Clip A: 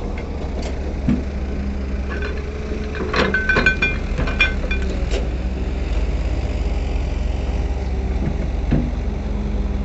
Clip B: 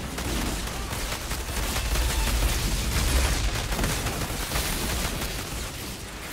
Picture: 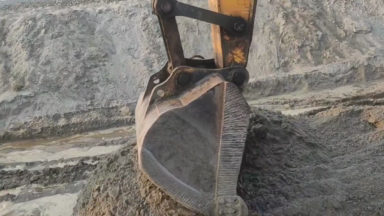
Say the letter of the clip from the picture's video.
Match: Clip A